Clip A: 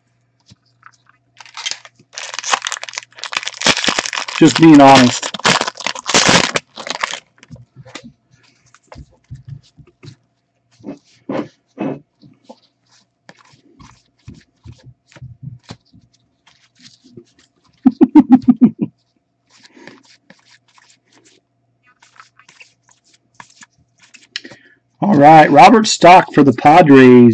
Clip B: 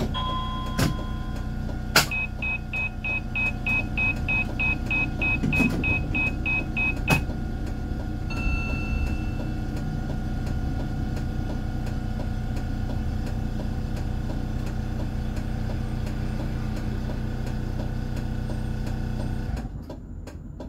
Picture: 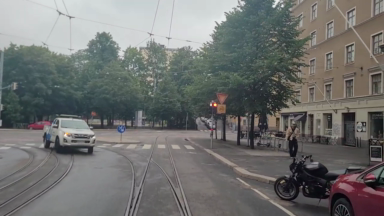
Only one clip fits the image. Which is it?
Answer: B